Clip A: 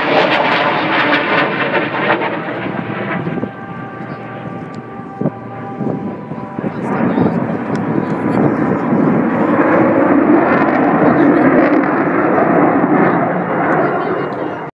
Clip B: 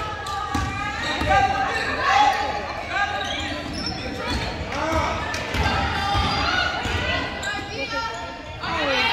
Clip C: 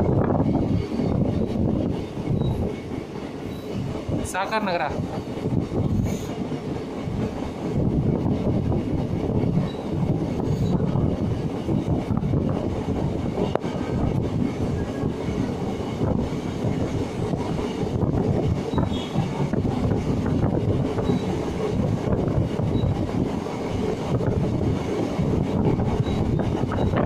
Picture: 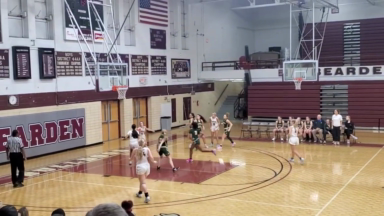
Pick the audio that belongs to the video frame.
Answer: B